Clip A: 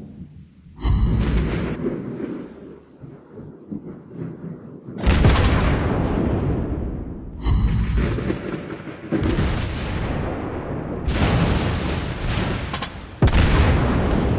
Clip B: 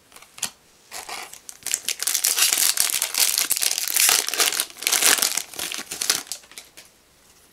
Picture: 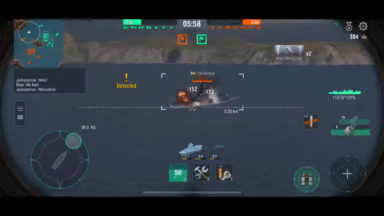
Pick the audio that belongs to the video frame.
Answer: A